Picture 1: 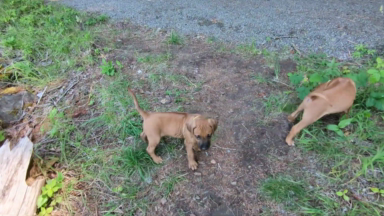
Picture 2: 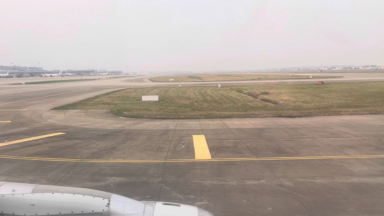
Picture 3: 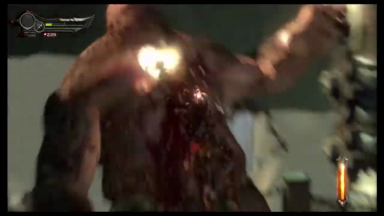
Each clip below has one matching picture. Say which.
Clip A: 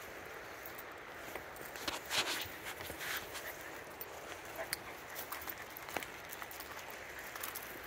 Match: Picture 1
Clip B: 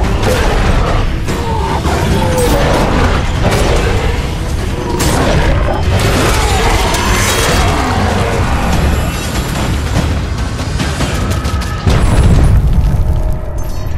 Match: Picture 3